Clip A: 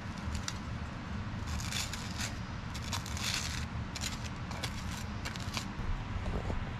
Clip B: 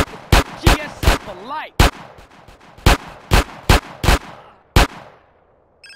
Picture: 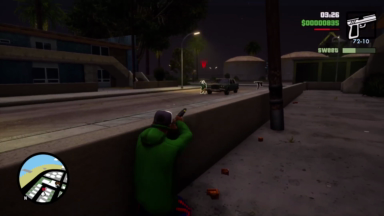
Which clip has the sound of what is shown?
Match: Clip B